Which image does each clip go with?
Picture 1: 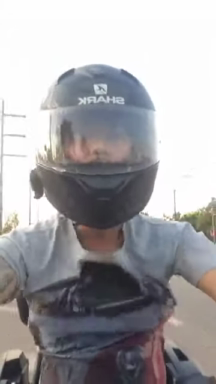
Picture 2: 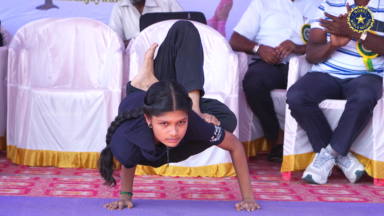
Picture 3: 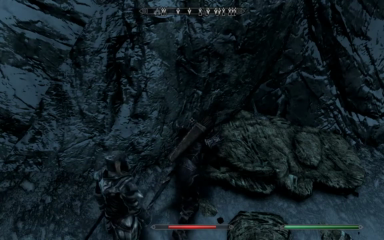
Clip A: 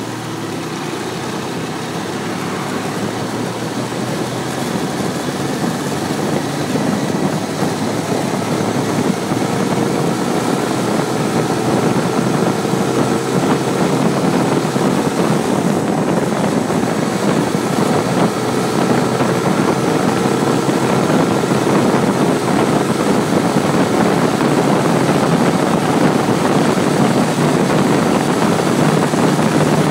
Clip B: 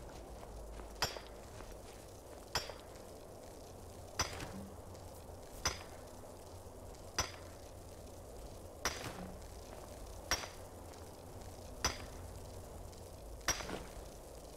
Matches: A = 1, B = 3